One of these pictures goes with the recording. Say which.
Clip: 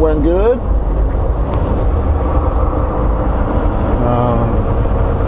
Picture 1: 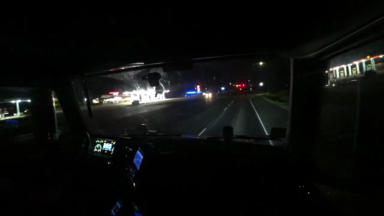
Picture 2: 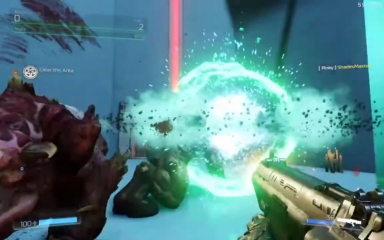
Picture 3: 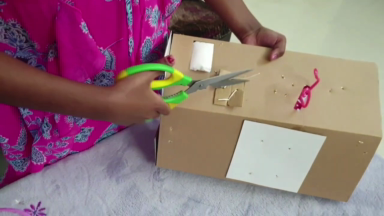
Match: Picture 1